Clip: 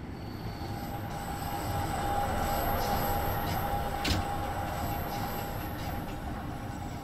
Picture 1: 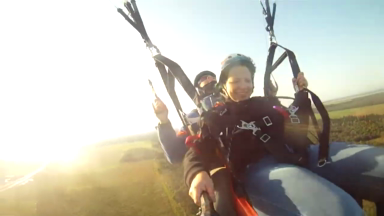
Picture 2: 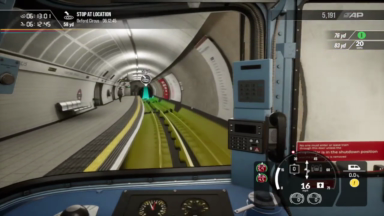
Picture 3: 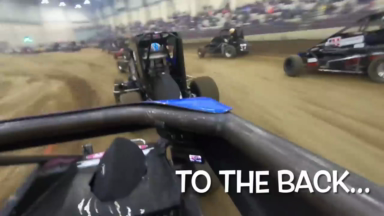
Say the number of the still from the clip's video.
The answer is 2